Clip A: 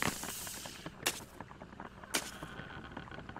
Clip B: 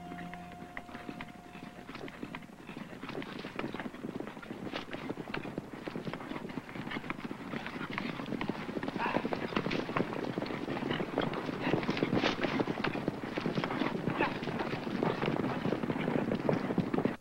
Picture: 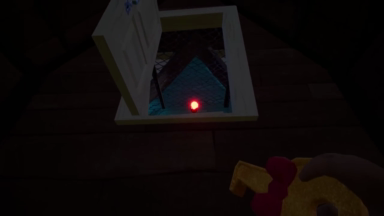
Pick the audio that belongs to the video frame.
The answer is A